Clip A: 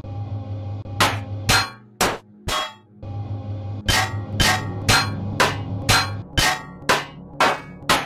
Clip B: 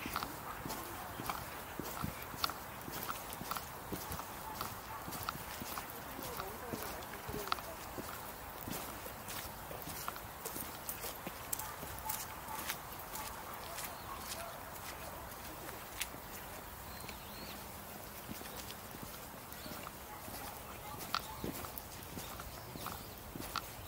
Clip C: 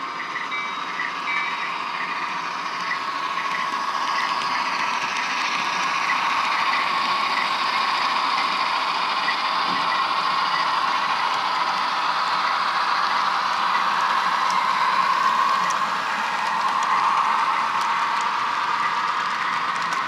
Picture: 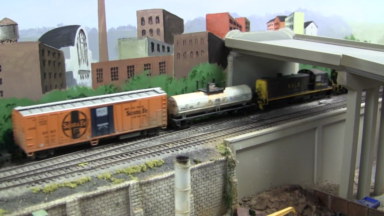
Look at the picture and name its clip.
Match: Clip C